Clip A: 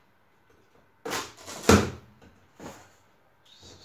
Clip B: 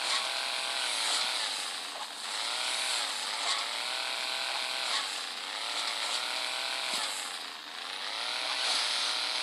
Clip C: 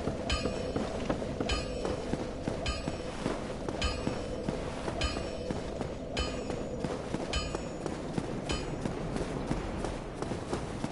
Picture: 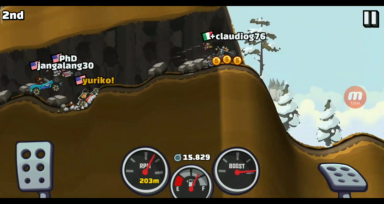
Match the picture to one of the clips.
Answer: B